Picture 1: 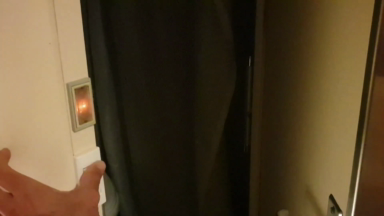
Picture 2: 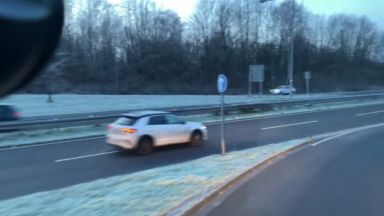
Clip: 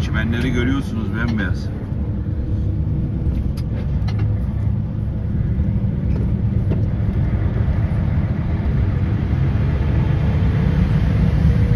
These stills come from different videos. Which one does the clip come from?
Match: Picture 2